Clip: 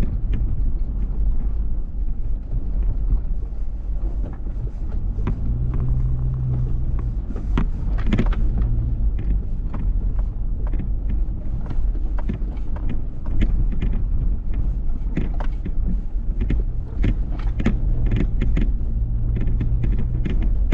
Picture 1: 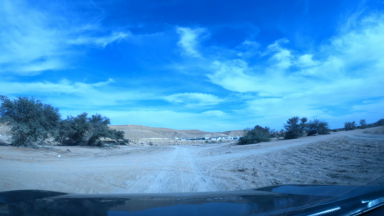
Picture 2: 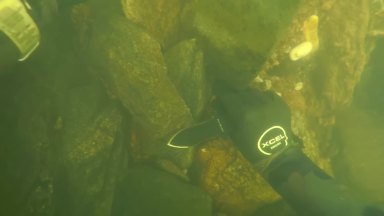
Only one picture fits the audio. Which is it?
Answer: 1